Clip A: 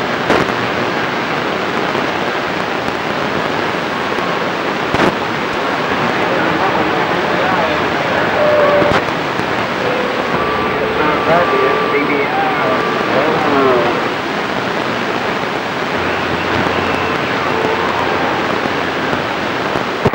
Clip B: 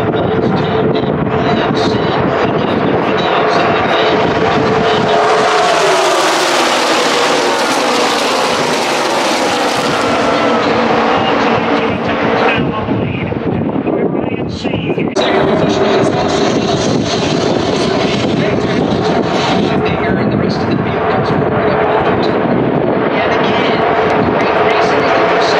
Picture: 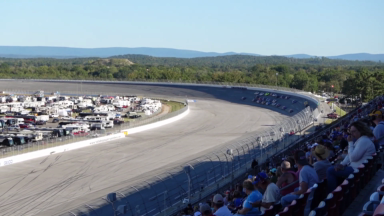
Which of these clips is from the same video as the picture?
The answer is B